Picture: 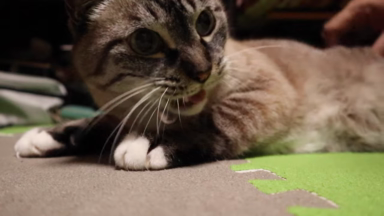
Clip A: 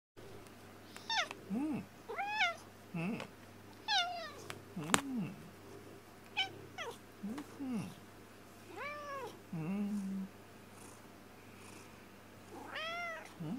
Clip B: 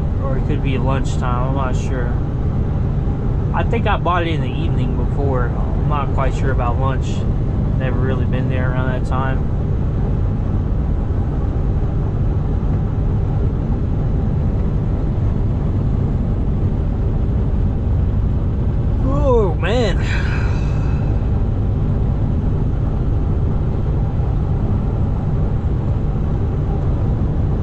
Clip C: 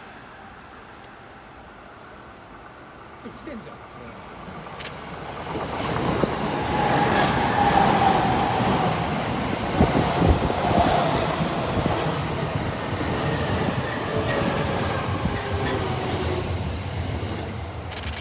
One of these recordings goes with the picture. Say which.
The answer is A